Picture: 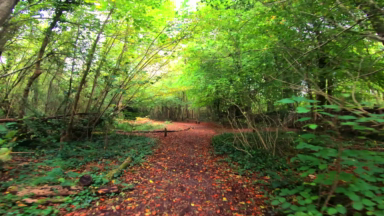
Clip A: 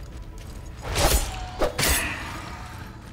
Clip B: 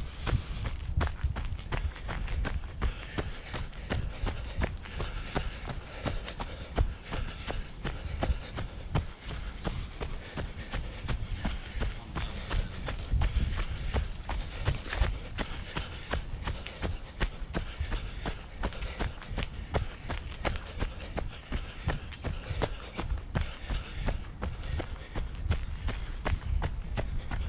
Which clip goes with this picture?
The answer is B